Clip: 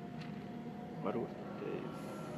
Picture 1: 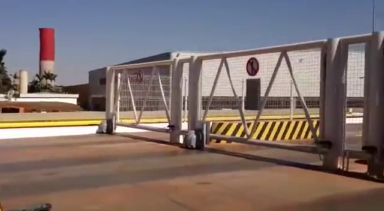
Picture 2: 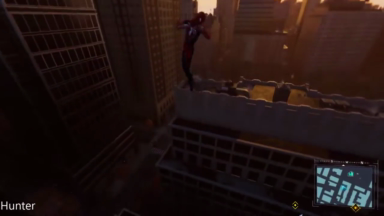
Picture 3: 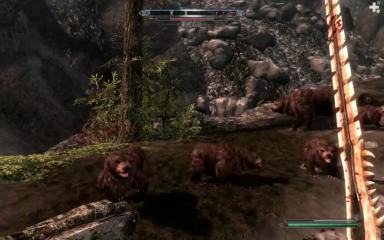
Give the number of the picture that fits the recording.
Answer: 1